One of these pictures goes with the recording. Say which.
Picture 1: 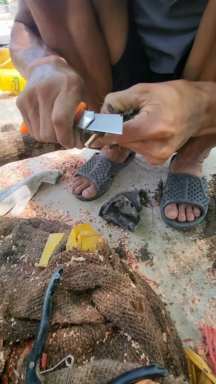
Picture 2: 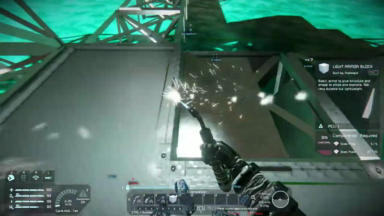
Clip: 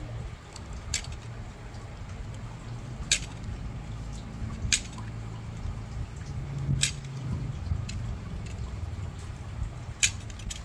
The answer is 1